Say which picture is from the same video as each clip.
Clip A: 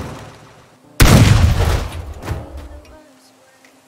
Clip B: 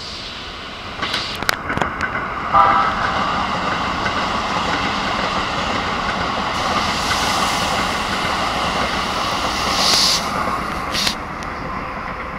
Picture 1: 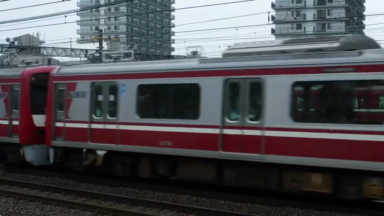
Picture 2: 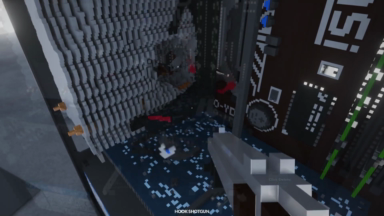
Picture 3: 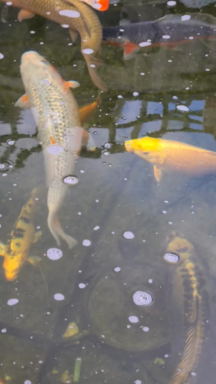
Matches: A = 2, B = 1